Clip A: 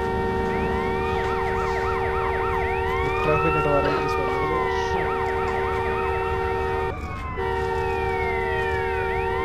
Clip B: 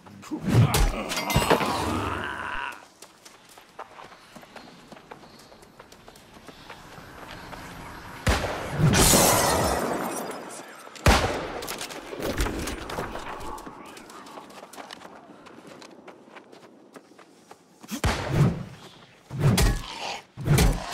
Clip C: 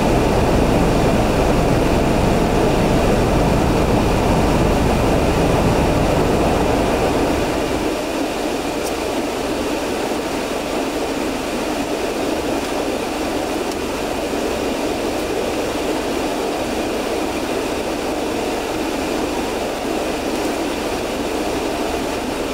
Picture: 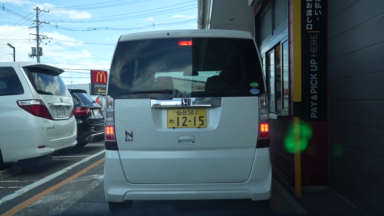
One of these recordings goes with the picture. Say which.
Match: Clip C